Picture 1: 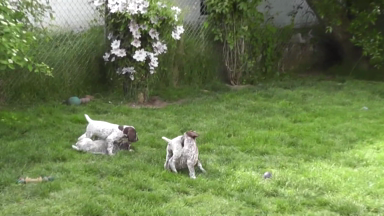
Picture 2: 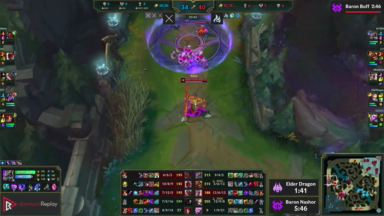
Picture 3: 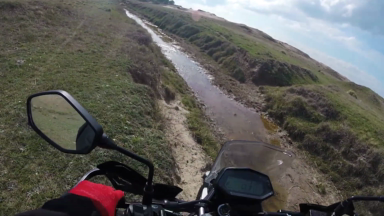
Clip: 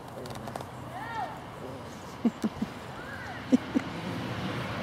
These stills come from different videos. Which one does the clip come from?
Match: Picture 1